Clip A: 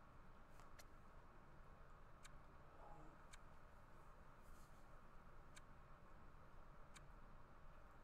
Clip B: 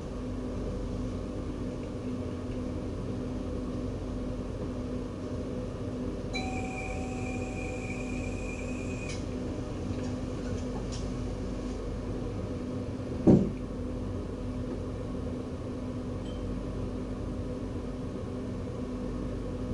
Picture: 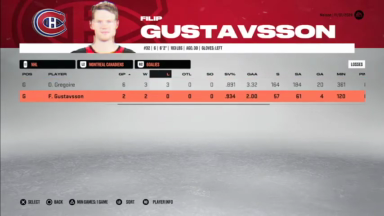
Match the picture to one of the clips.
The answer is A